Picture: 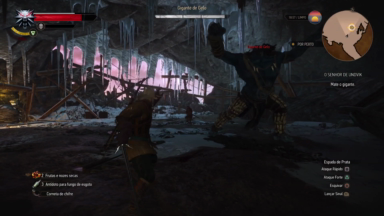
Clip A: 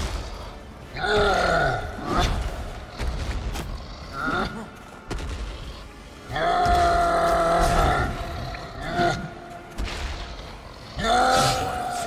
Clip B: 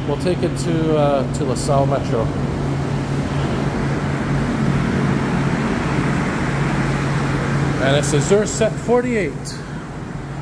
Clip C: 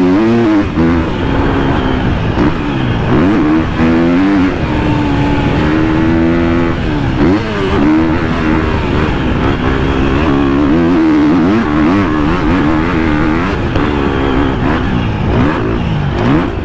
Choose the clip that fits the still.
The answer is A